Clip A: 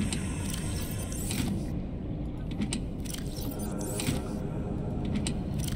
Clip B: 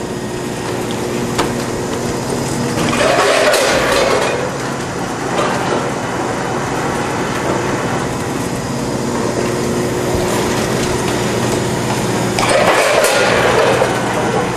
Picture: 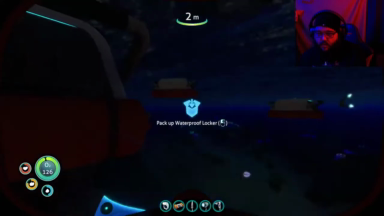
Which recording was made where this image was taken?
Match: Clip A